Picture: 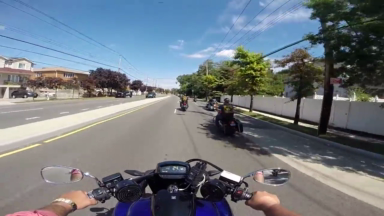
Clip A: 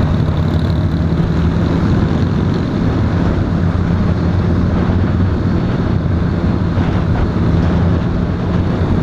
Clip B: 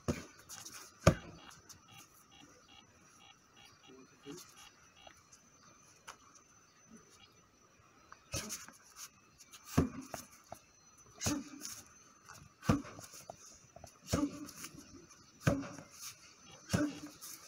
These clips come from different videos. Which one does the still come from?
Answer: A